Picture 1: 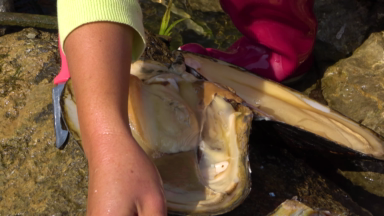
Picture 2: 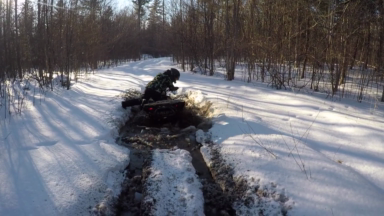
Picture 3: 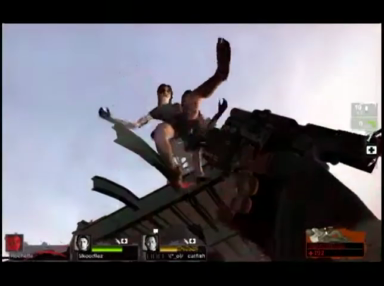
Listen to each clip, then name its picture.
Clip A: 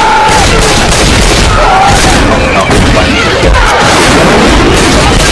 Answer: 3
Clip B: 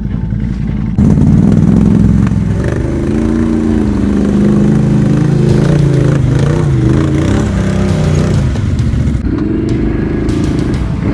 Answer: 2